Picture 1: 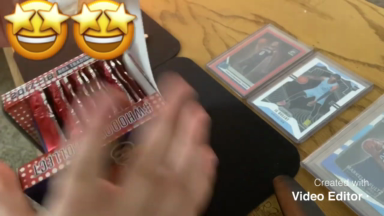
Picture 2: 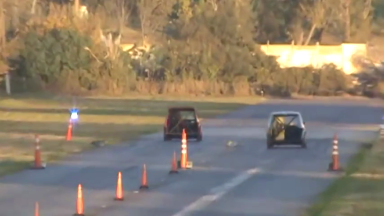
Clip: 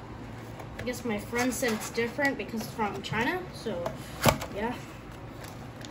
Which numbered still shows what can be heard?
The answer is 1